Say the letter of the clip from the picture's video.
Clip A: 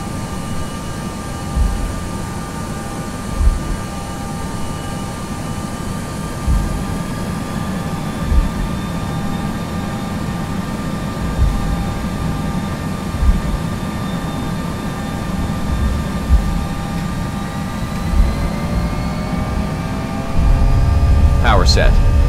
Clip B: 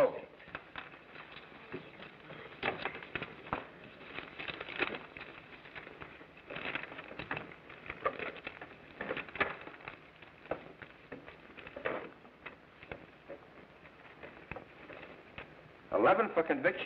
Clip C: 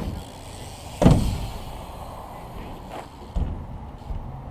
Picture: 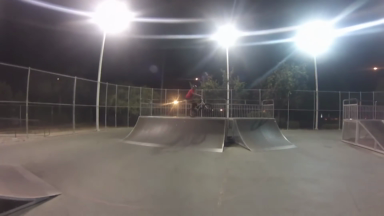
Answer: C